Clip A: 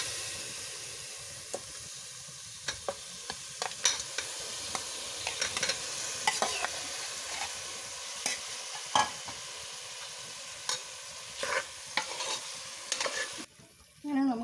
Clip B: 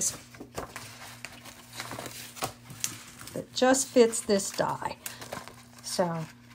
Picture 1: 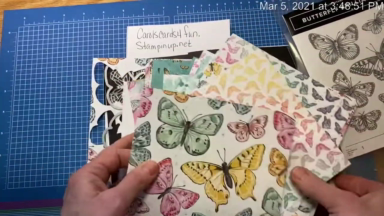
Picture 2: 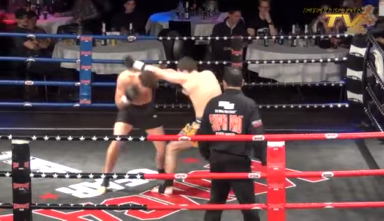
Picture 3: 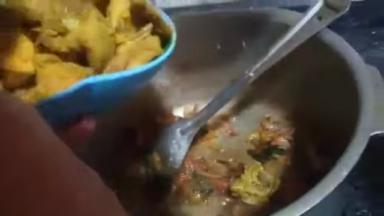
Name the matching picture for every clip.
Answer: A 3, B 1